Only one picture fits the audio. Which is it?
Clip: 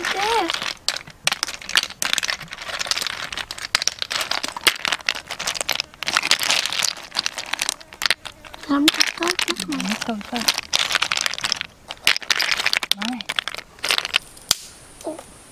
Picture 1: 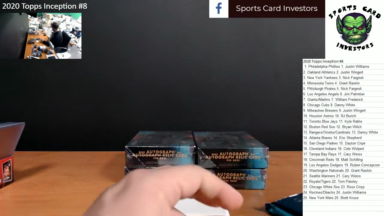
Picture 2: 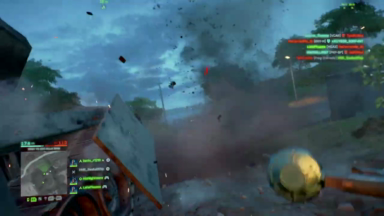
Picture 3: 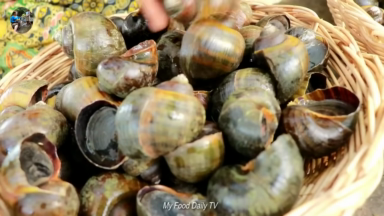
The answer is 3